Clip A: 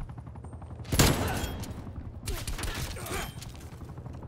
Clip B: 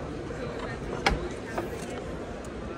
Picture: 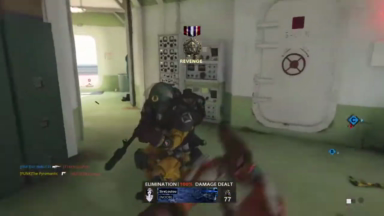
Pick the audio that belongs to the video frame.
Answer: A